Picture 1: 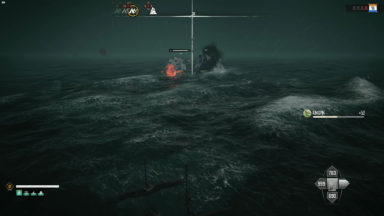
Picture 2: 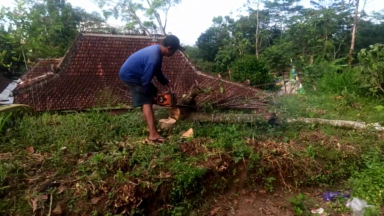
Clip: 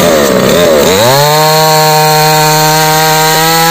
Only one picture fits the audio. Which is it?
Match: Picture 2